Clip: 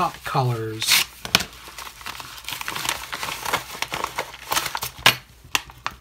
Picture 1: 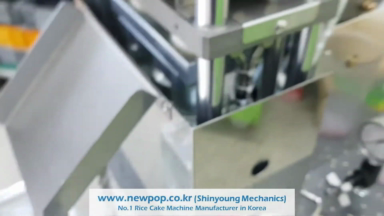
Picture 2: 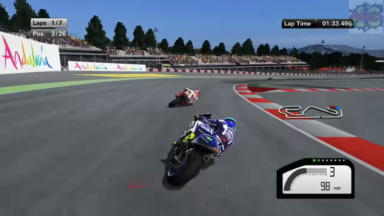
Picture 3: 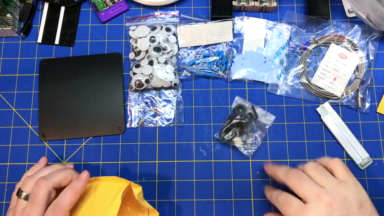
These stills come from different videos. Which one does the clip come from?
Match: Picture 3